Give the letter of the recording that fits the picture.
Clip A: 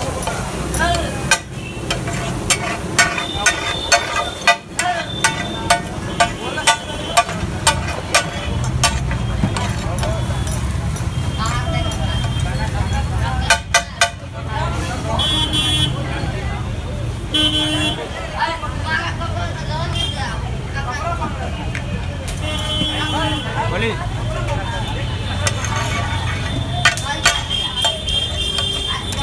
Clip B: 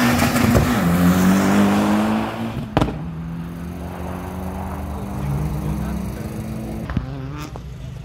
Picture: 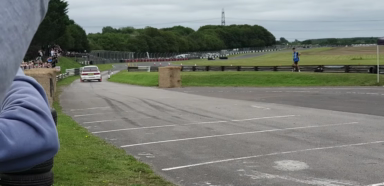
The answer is B